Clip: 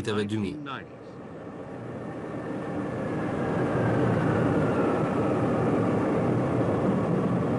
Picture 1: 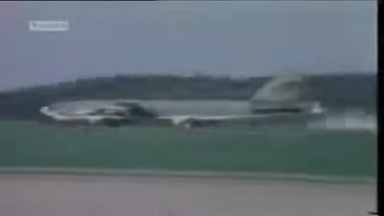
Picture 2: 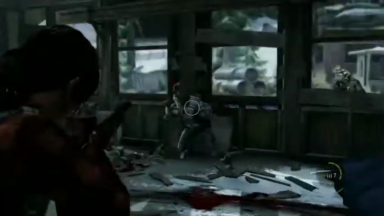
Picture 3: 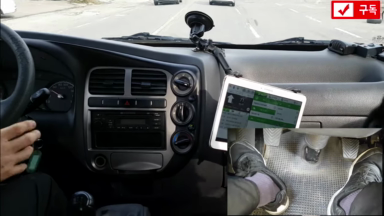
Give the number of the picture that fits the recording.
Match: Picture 1